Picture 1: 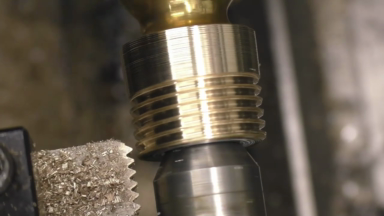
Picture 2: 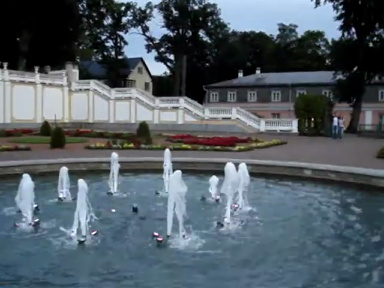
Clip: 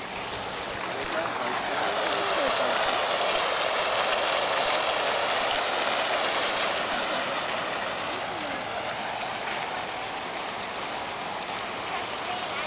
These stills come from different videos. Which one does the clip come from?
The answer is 2